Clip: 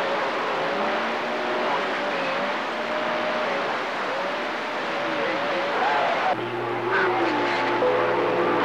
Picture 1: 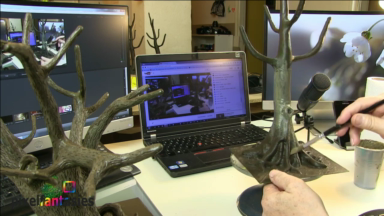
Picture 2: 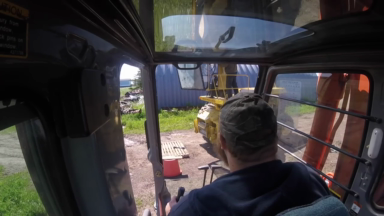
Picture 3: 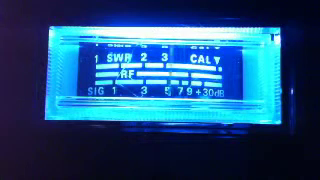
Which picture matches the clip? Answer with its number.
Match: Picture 3